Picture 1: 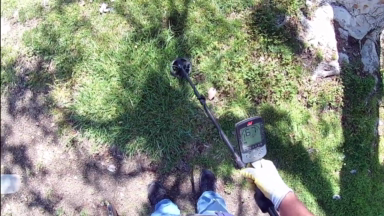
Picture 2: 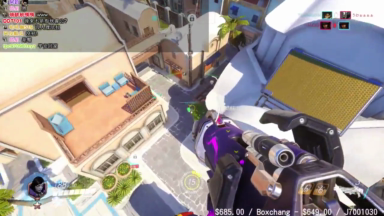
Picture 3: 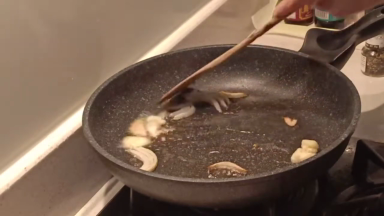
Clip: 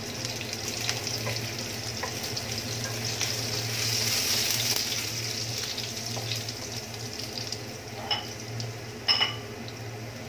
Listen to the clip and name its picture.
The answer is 3